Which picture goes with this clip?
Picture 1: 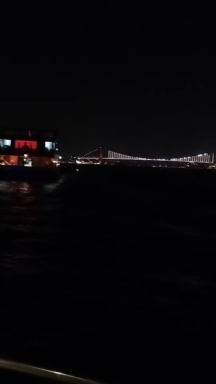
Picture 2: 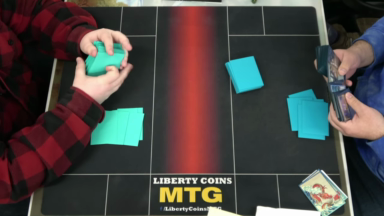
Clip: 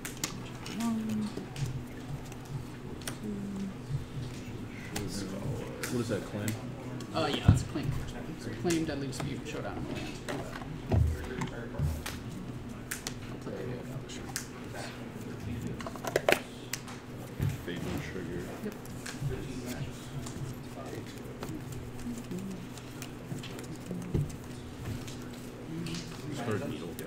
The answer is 2